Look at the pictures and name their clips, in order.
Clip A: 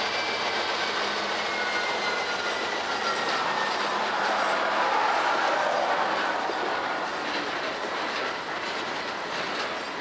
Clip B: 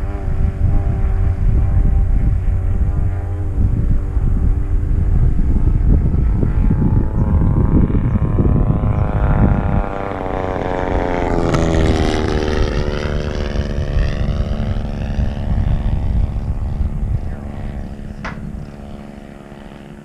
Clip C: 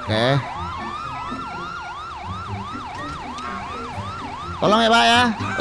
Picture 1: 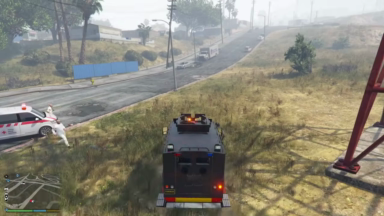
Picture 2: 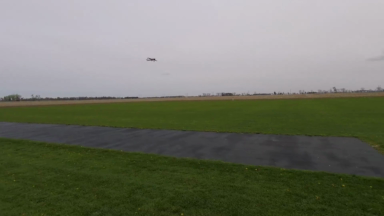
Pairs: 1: C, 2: B